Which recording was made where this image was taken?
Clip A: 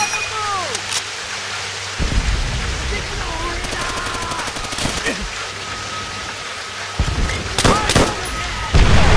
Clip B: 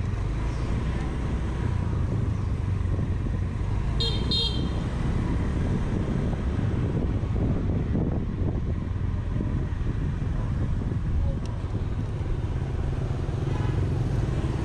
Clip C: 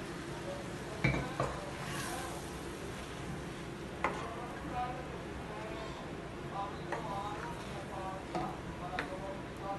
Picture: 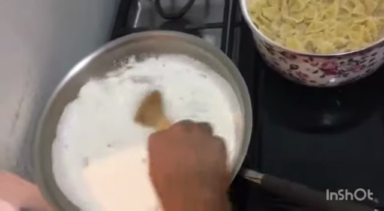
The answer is C